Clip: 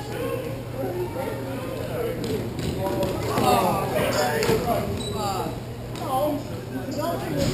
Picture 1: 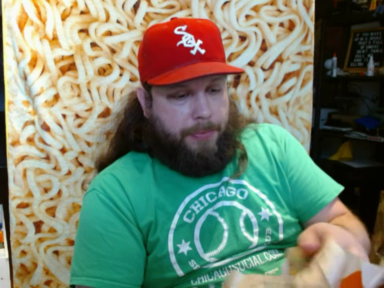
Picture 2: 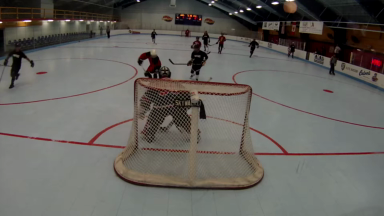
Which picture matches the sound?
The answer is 2